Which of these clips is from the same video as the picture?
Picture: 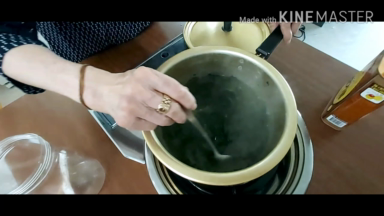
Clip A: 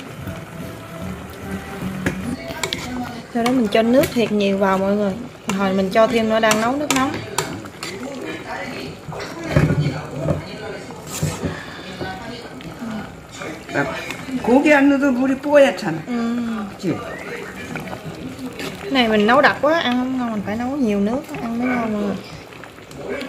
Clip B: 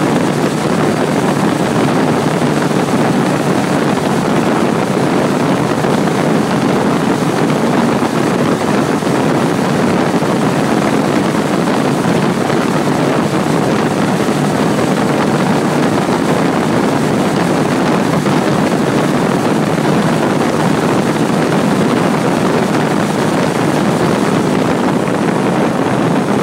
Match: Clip A